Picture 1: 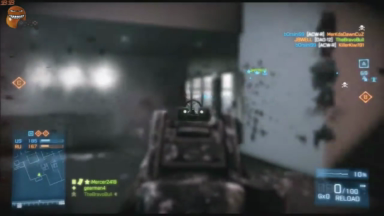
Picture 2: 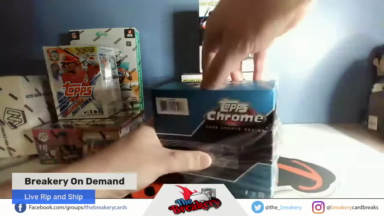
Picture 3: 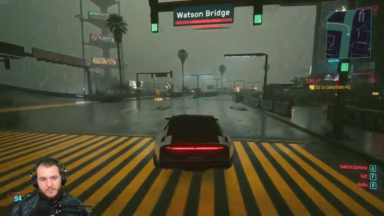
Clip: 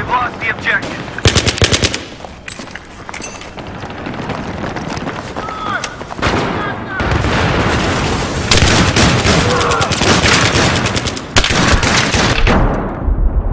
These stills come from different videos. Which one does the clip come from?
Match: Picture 1